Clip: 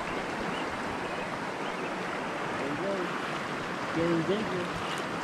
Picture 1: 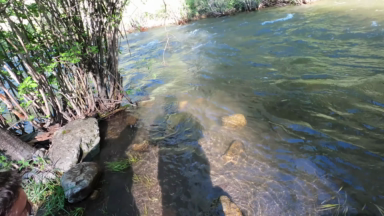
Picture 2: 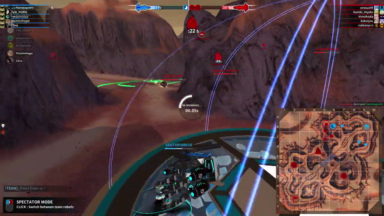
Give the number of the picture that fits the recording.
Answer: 1